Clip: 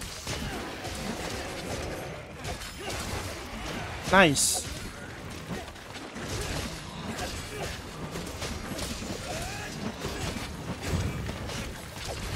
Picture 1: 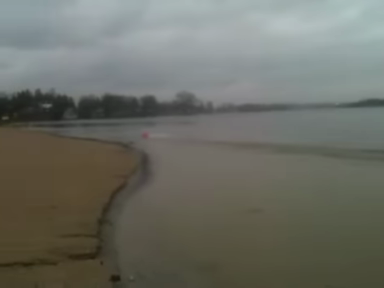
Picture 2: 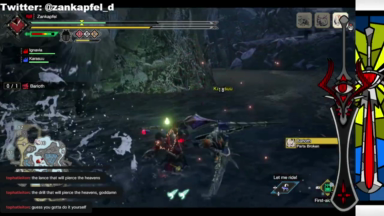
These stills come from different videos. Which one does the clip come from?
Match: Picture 2